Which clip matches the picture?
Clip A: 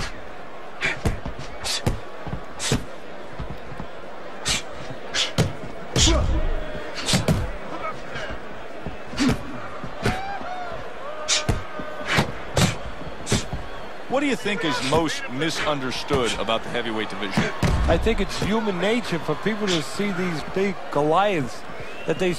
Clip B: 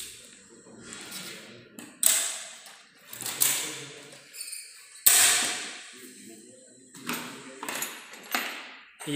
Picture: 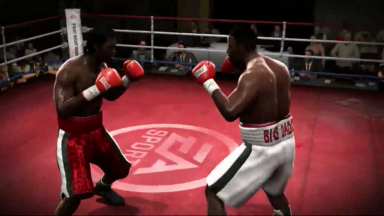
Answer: A